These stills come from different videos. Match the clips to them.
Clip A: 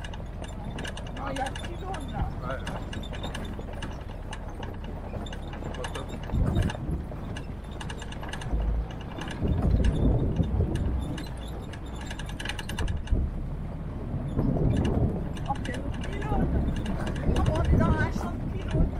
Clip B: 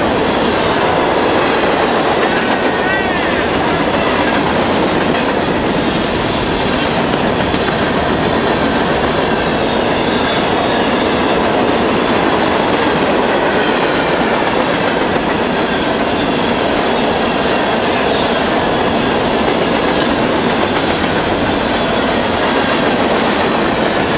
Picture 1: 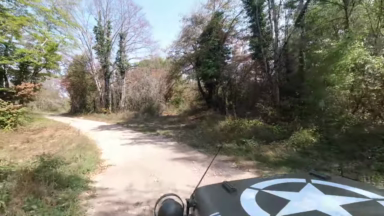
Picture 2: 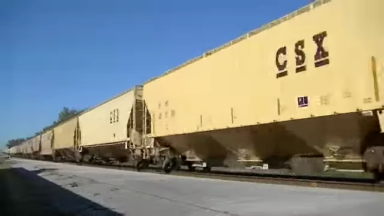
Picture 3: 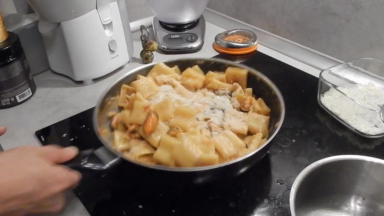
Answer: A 1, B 2